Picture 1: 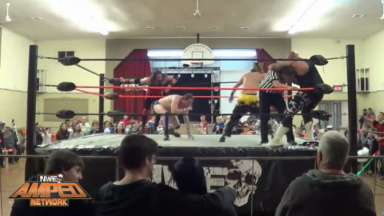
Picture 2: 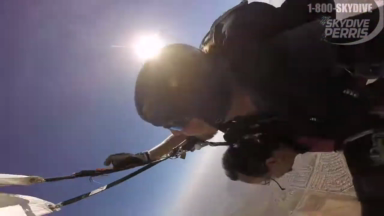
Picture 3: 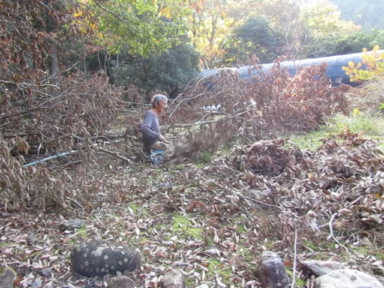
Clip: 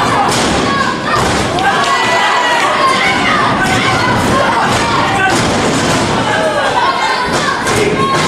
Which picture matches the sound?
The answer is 1